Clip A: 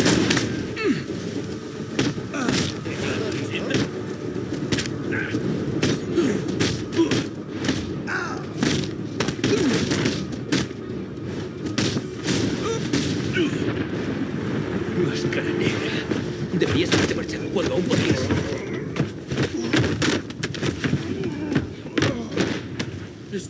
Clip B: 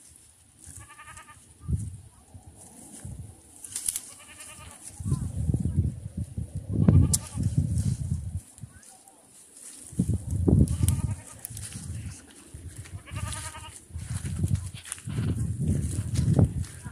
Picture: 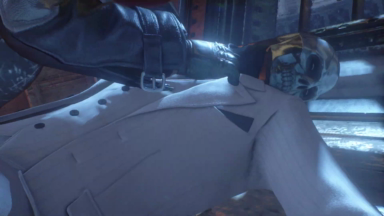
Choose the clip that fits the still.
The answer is A